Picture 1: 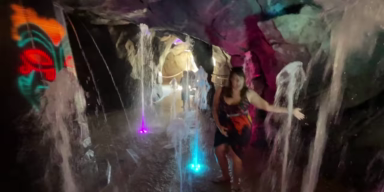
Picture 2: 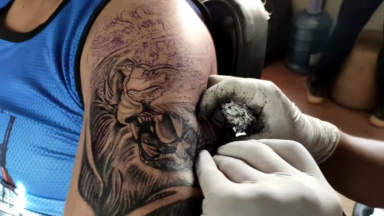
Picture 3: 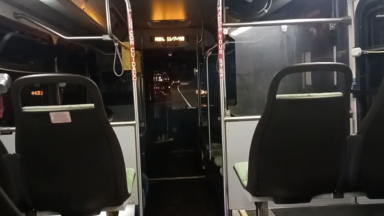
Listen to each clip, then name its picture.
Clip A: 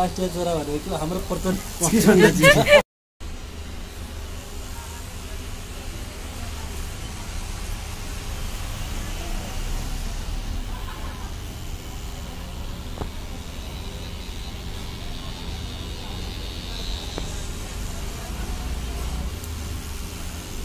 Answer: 2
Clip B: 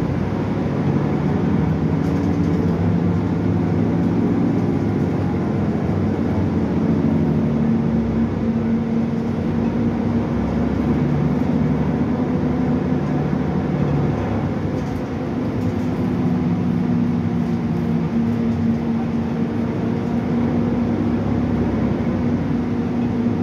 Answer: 3